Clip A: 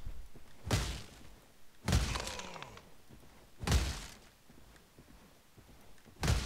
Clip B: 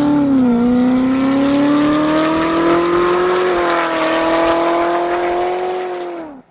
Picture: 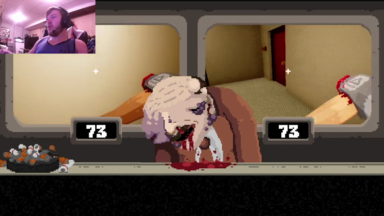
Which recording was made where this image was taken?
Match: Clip A